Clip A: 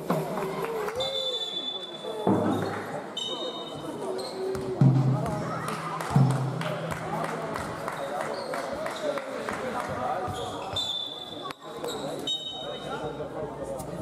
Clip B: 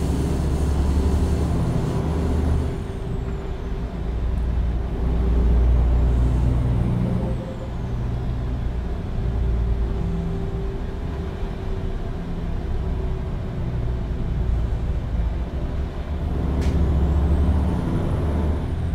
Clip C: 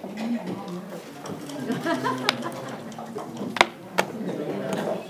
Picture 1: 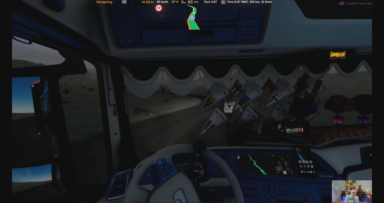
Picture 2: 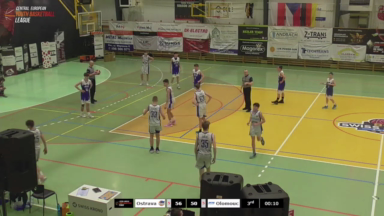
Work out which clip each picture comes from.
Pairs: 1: B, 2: A